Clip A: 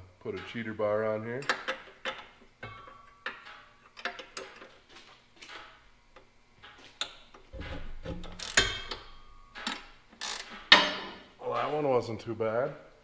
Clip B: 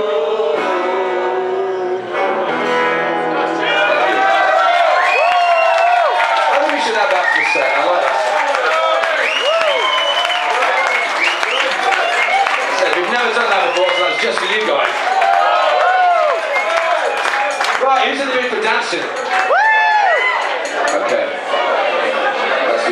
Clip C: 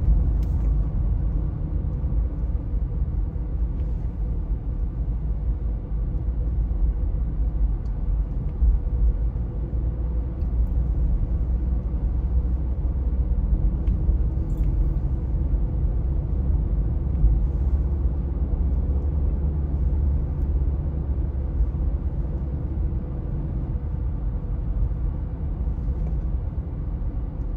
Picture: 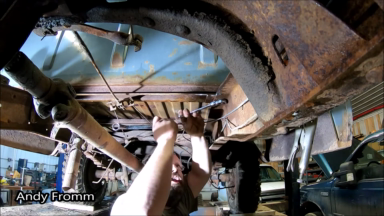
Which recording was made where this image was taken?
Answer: A